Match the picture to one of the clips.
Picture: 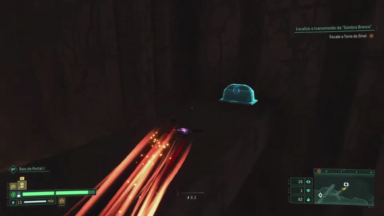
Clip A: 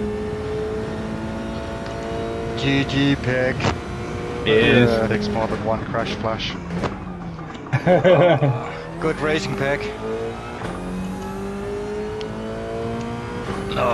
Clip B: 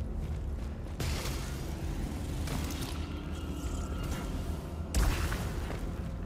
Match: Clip B